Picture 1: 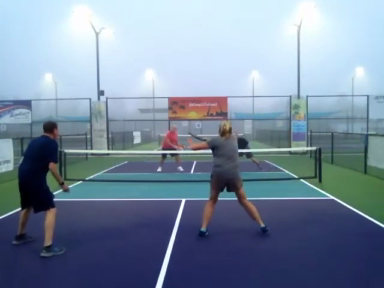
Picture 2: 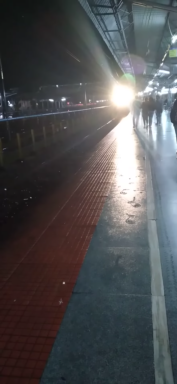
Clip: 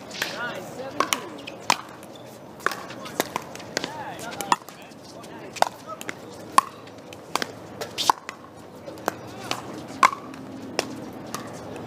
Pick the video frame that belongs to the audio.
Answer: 1